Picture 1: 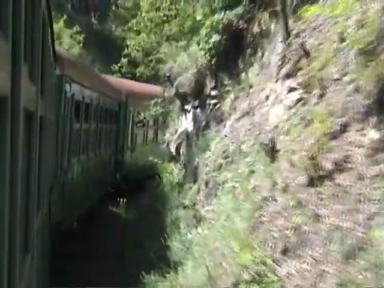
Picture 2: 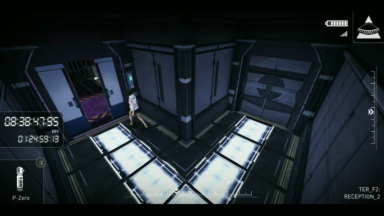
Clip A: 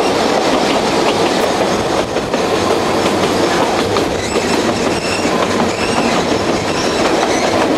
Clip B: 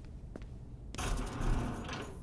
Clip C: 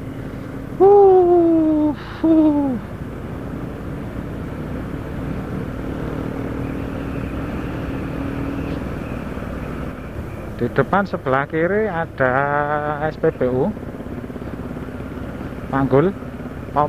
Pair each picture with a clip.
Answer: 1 A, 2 B